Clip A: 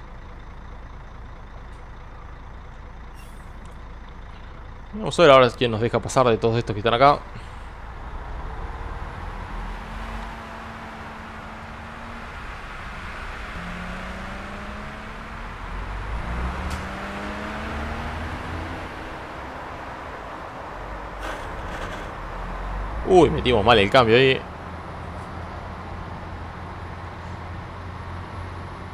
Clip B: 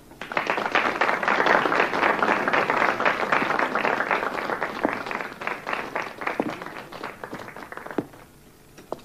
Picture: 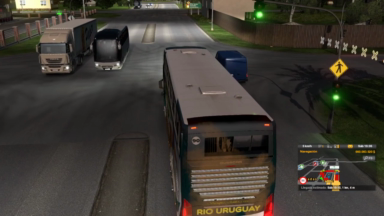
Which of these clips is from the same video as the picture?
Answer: A